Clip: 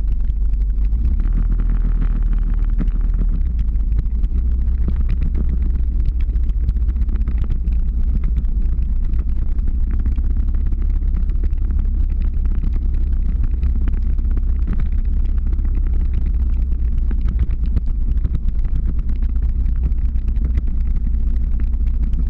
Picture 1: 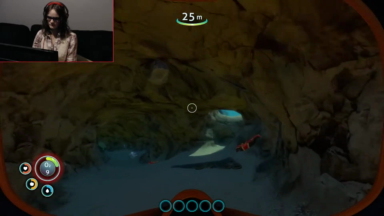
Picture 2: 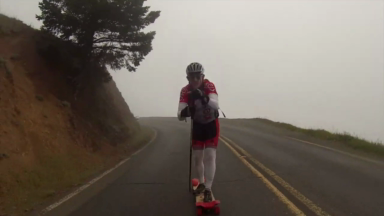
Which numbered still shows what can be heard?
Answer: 2